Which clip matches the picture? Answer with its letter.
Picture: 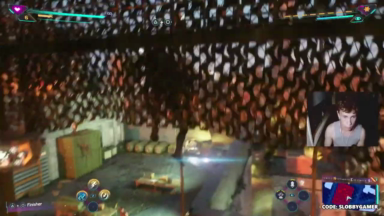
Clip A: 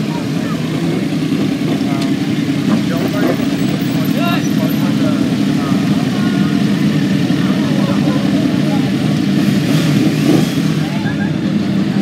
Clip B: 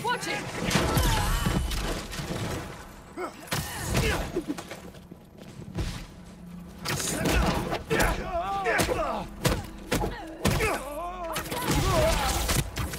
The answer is B